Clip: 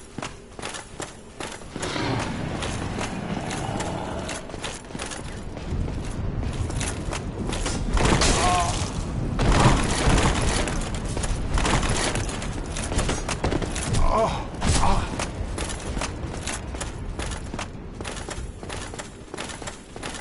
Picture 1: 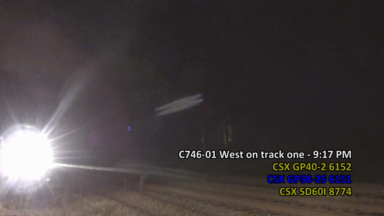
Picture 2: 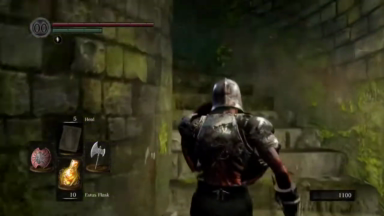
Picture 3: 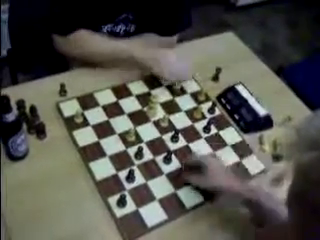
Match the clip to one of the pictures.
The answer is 2